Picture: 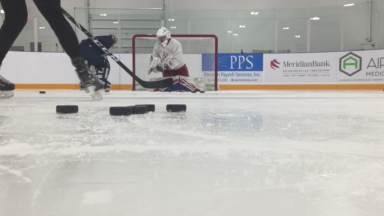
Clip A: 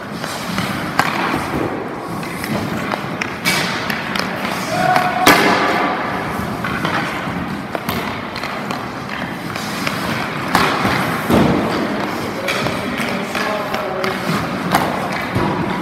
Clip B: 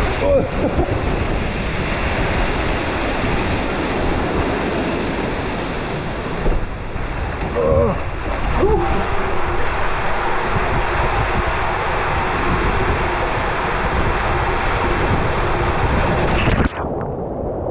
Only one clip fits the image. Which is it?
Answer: A